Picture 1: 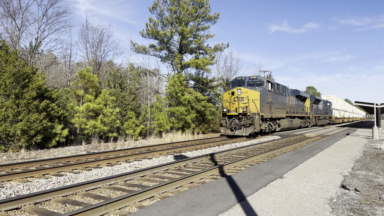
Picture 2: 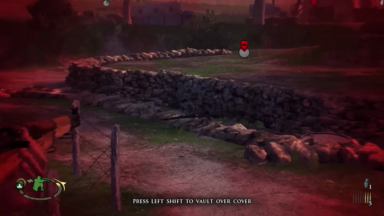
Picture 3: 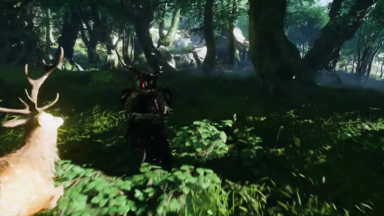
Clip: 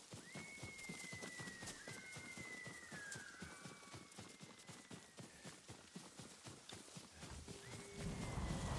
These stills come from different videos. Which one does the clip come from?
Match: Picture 3